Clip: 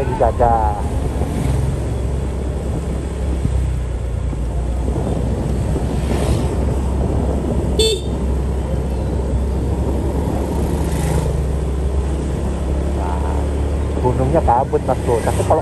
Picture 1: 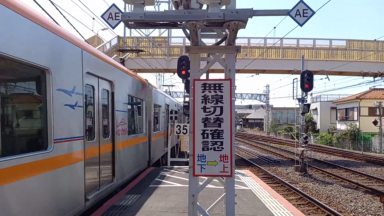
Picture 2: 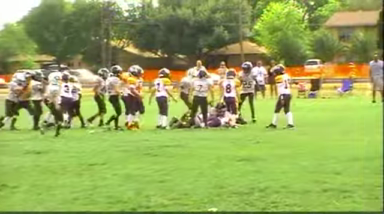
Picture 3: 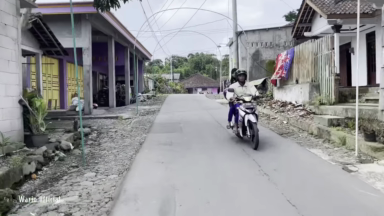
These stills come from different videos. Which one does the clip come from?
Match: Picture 3